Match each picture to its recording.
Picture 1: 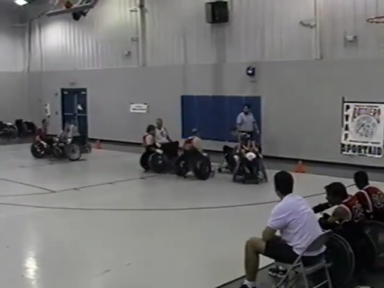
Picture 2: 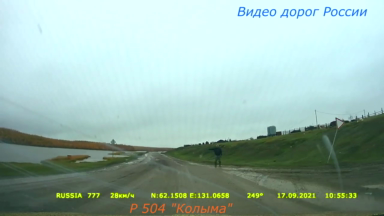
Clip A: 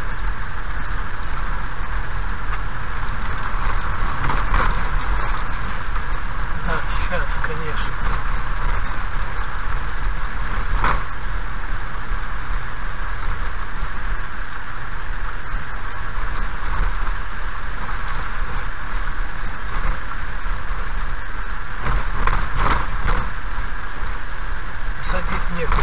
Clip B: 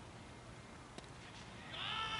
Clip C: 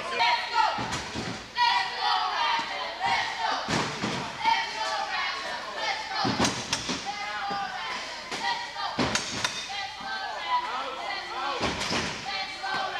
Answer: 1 C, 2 A